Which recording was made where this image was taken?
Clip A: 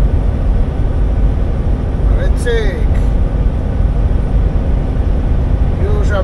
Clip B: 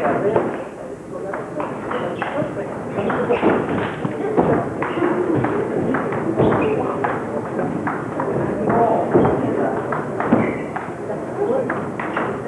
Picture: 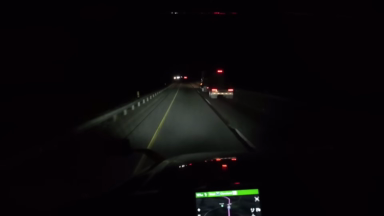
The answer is A